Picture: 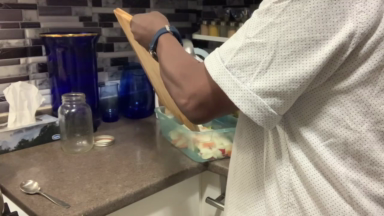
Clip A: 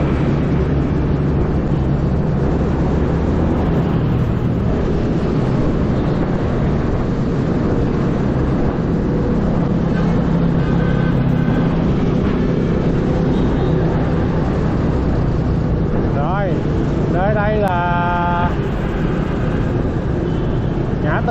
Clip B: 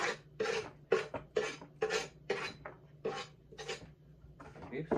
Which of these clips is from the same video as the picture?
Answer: B